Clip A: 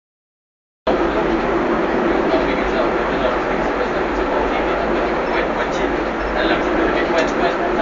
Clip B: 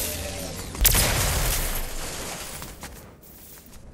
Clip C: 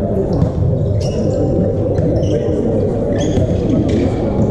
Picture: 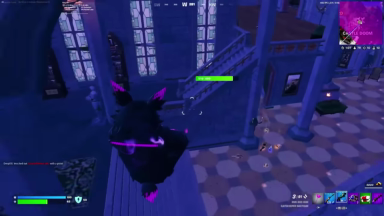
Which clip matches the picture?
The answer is B